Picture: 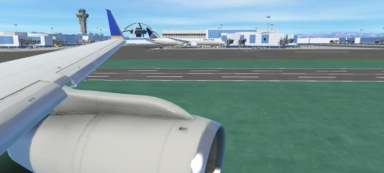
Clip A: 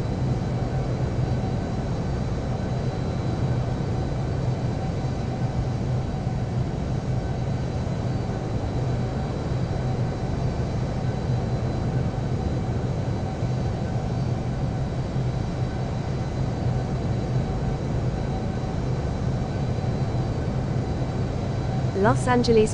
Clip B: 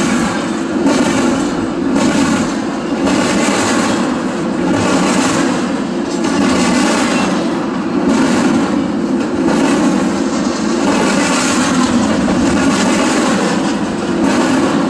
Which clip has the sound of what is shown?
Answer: A